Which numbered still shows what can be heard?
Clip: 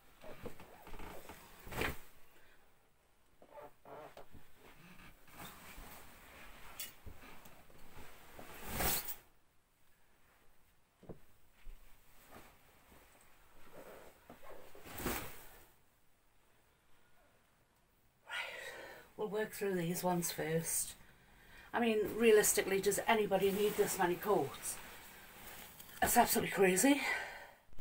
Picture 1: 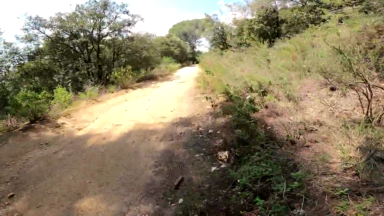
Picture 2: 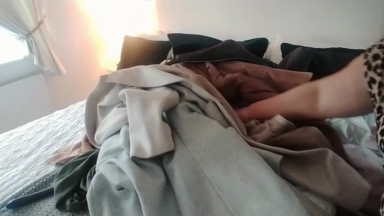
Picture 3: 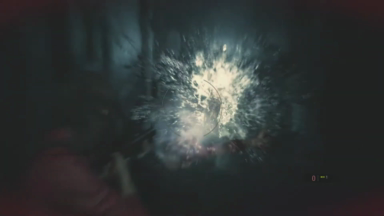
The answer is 2